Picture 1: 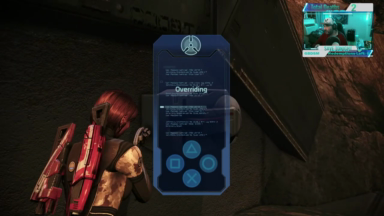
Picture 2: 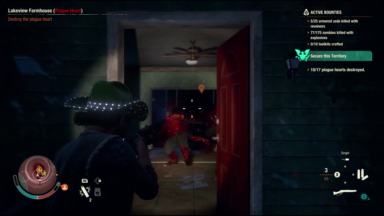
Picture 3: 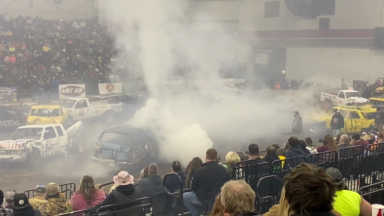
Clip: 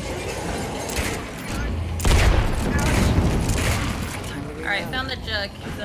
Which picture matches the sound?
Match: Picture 2